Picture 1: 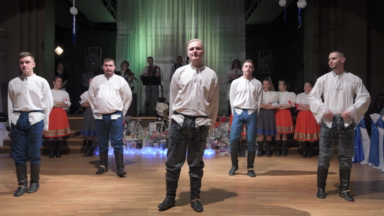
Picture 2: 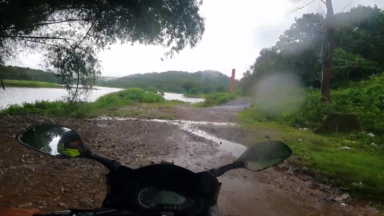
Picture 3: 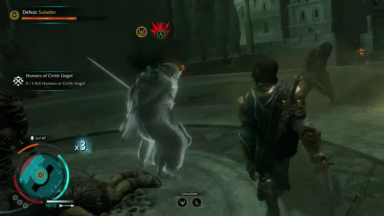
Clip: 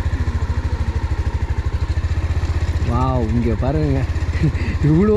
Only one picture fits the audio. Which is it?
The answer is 2